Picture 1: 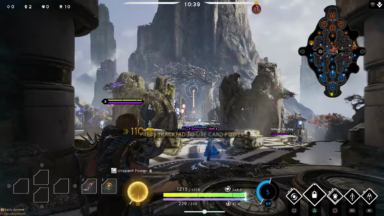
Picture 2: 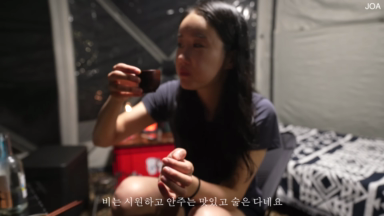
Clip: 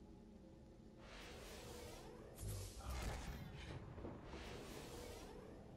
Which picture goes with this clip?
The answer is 1